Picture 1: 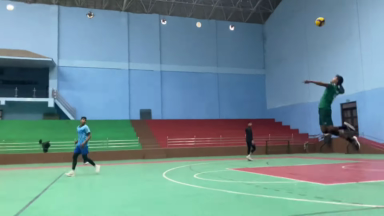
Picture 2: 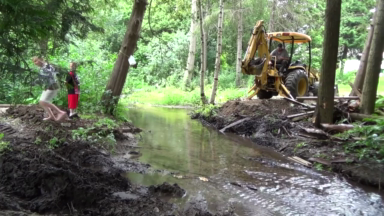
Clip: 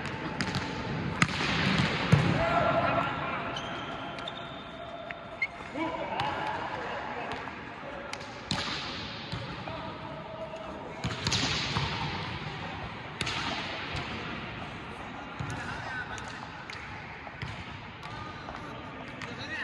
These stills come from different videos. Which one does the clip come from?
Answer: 1